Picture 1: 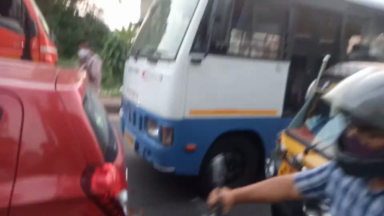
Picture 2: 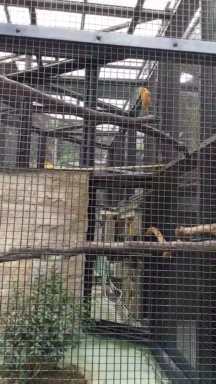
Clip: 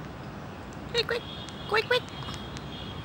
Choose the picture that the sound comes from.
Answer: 2